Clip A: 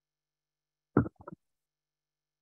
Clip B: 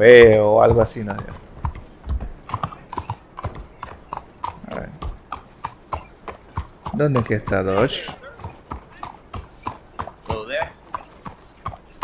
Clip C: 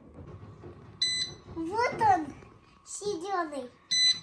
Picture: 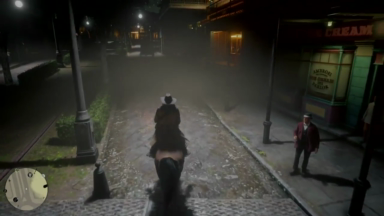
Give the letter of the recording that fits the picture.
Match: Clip B